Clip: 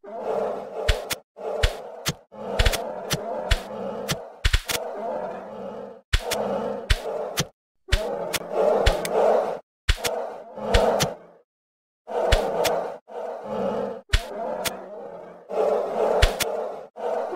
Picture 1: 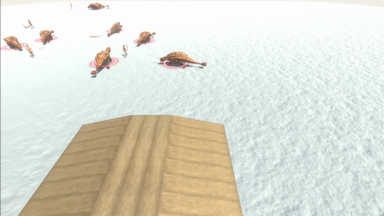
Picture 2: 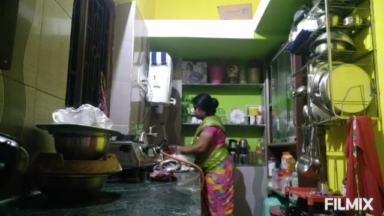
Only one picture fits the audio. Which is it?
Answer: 1